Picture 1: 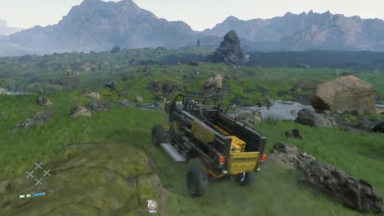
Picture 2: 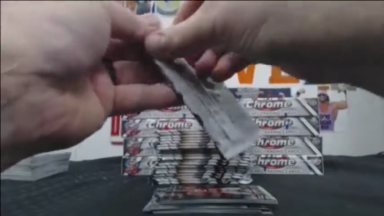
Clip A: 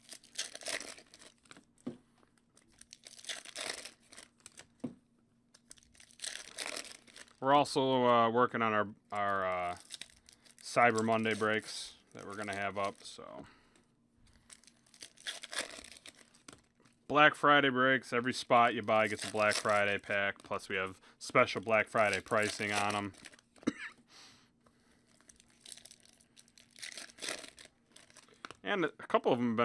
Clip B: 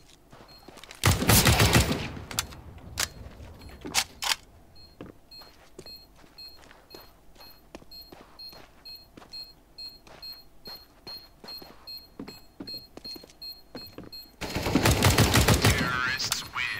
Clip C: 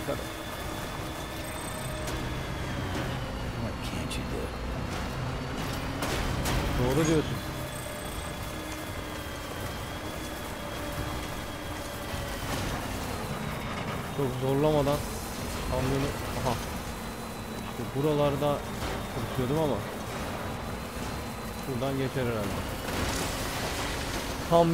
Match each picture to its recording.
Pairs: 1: C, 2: A